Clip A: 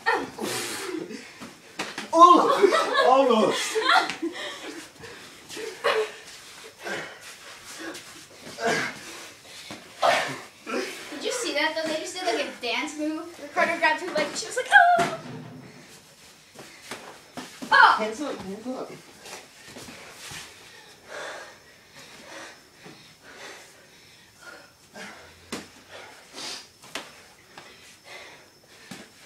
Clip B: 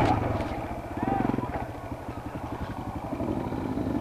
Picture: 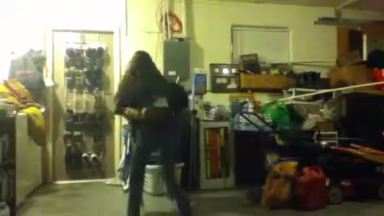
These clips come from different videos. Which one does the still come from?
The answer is A